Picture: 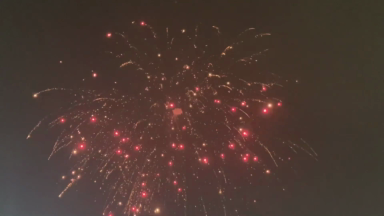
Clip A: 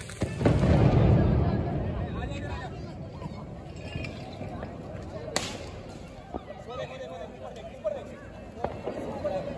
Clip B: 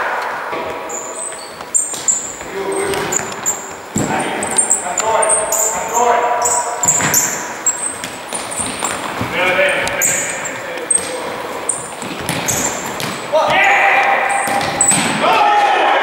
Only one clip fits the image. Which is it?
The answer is A